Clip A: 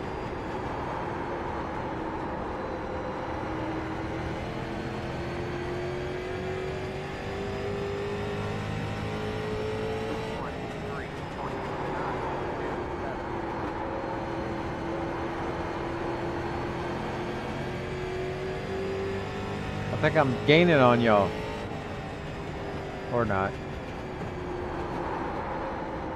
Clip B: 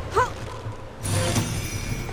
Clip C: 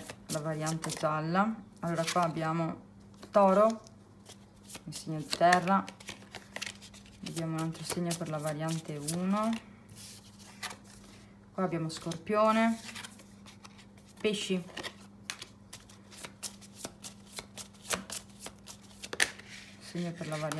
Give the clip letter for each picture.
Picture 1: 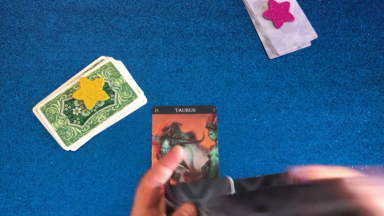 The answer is C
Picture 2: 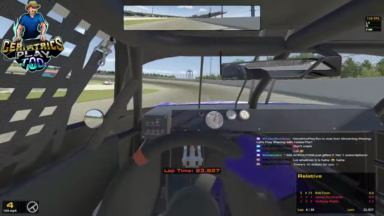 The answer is A